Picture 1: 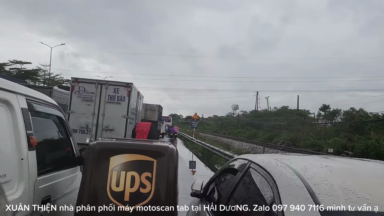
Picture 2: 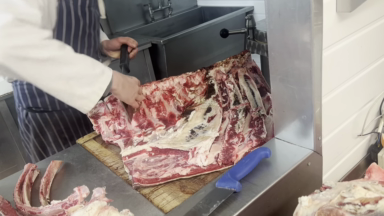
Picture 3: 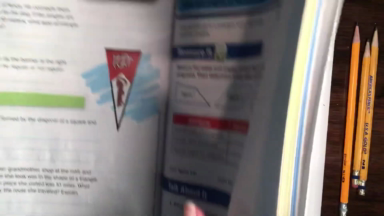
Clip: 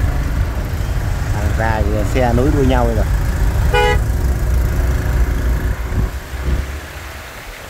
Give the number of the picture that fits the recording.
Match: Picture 1